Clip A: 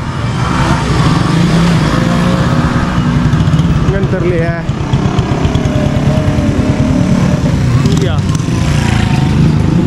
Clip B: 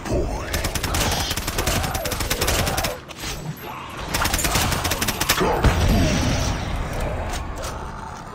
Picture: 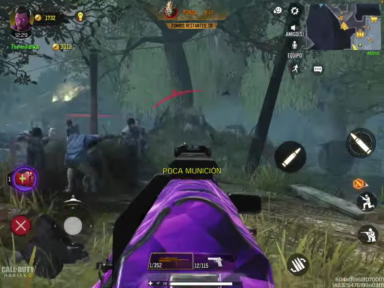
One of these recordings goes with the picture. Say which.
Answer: B